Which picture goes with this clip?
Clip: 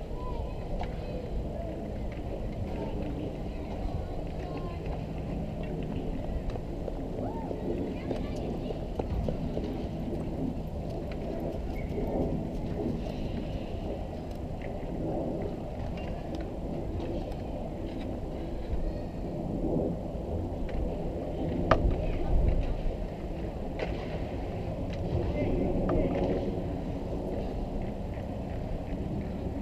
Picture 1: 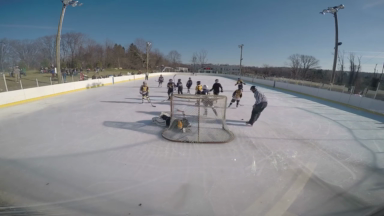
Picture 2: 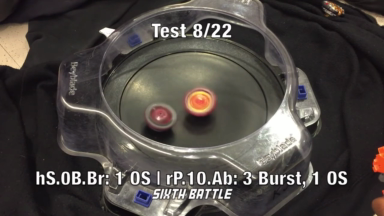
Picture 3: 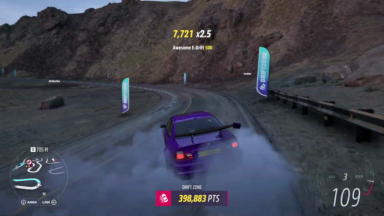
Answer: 1